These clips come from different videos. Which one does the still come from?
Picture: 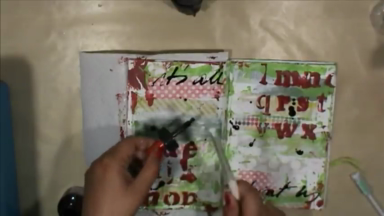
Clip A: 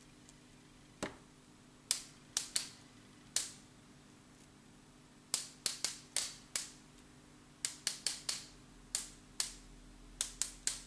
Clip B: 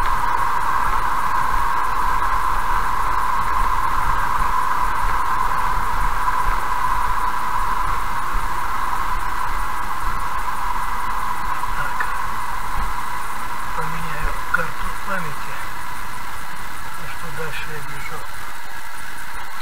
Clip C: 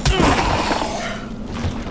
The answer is A